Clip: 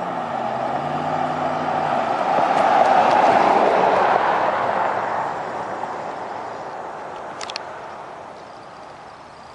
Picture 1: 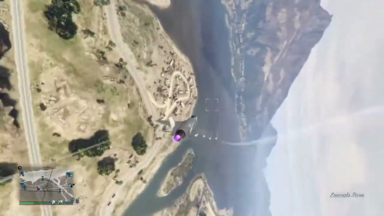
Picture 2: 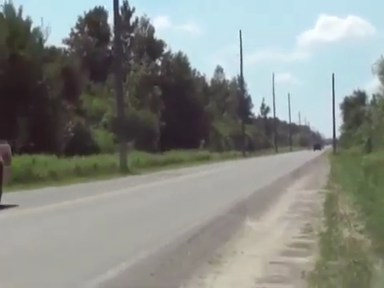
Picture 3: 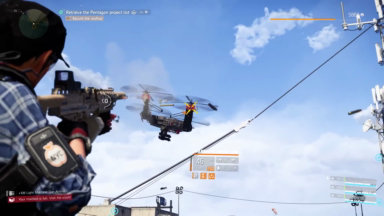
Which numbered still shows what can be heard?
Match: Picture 2